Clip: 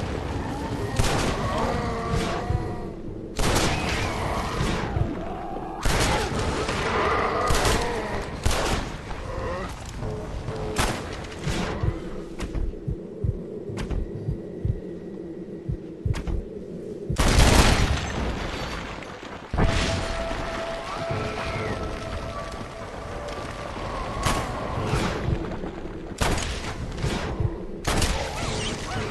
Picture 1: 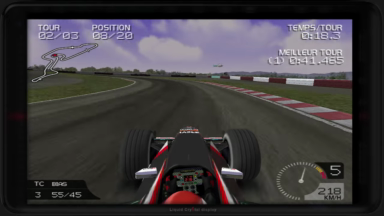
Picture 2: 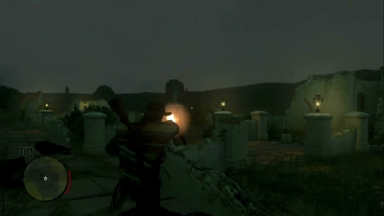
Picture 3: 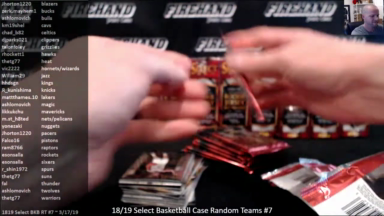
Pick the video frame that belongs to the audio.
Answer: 2